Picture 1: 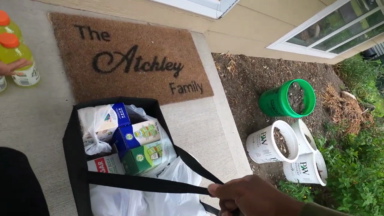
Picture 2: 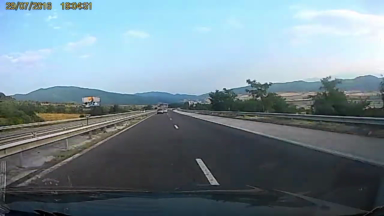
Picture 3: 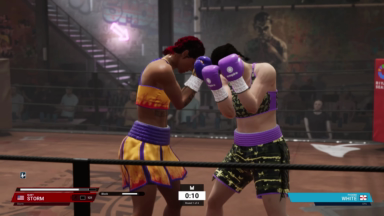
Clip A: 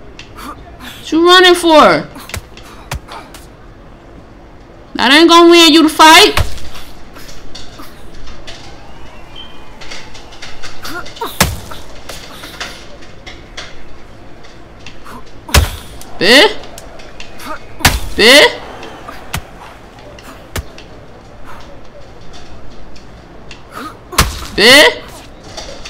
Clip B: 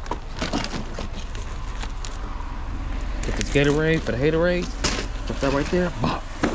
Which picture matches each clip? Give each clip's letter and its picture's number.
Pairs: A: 3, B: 1